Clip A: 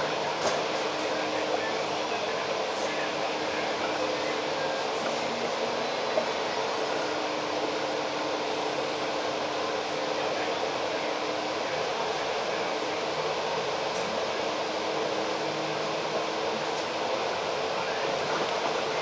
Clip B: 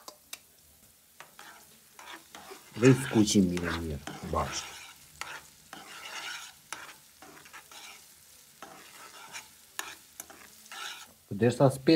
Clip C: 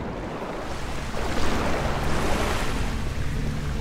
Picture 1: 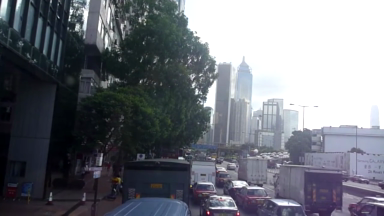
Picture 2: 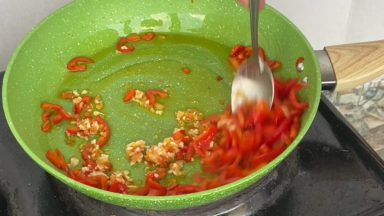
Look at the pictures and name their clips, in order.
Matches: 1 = A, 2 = B